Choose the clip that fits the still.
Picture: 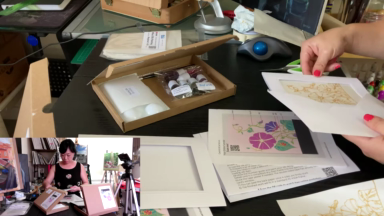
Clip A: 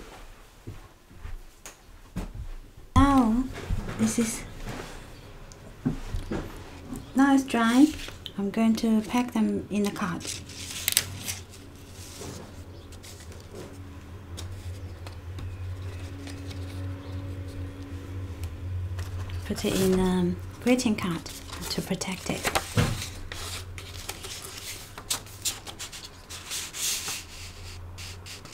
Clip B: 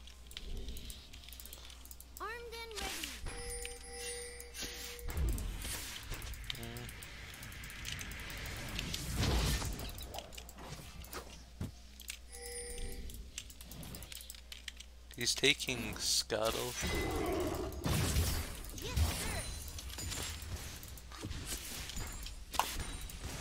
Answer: A